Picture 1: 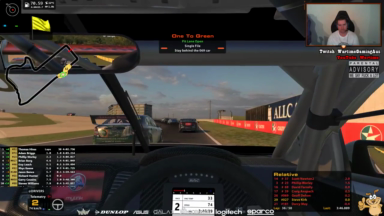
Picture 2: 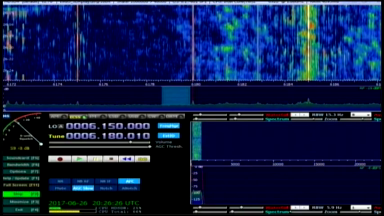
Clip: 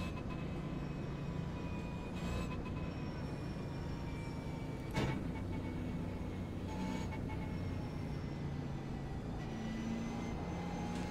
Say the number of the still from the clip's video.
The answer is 1